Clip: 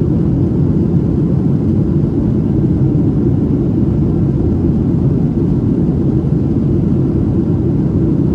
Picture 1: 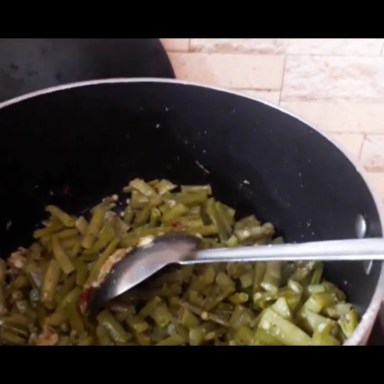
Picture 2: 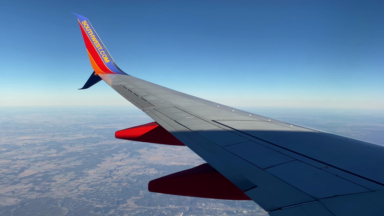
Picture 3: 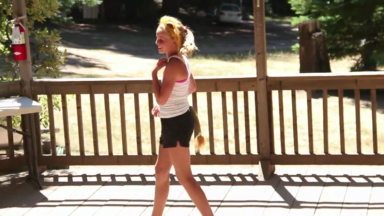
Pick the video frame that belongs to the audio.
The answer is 2